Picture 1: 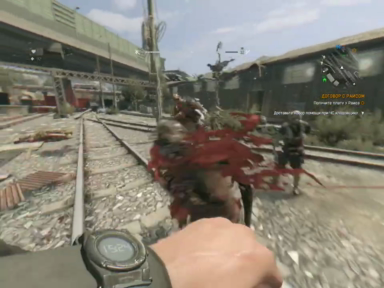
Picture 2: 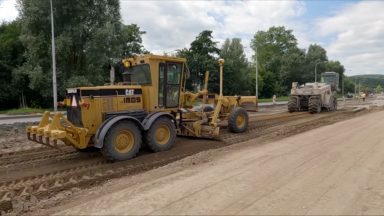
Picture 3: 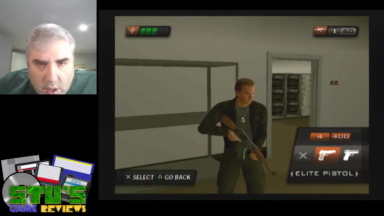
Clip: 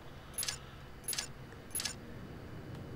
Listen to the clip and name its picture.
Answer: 3